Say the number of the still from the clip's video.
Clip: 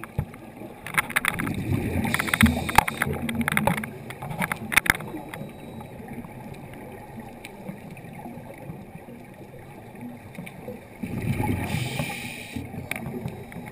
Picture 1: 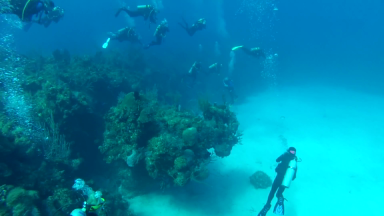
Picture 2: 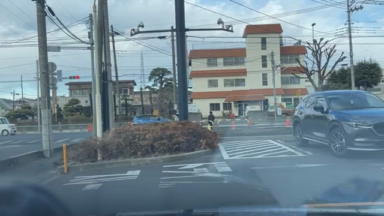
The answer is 1